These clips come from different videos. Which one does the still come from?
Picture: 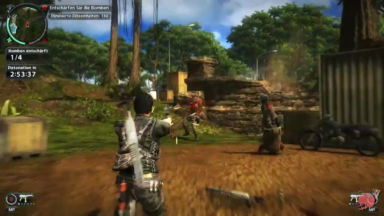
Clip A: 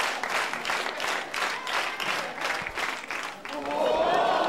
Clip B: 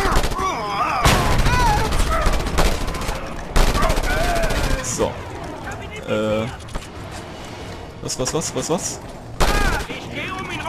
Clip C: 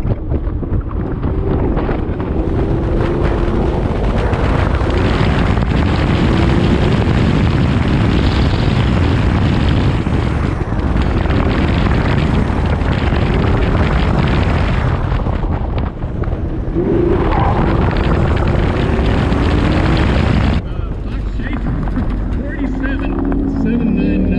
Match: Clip B